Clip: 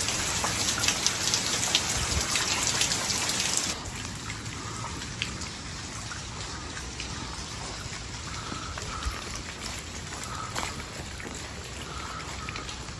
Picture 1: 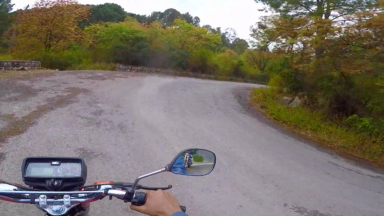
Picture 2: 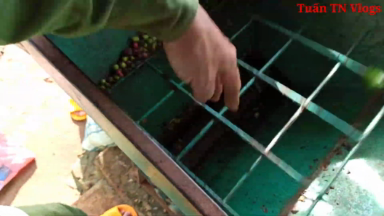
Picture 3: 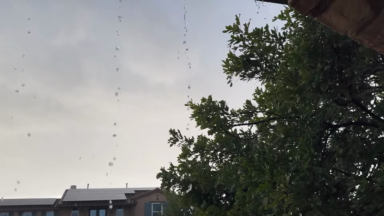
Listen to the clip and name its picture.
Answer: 3